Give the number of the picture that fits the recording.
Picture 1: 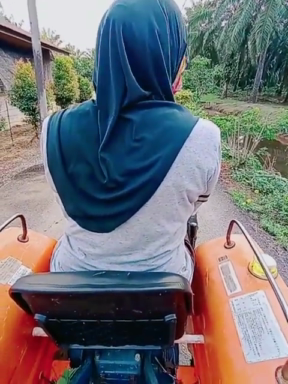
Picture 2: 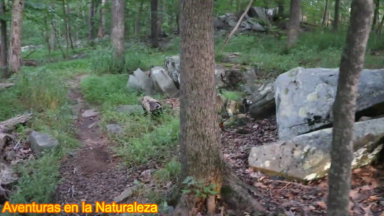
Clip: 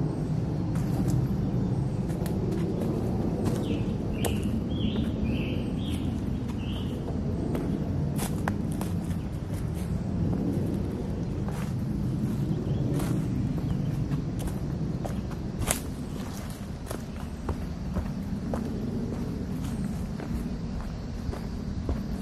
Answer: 2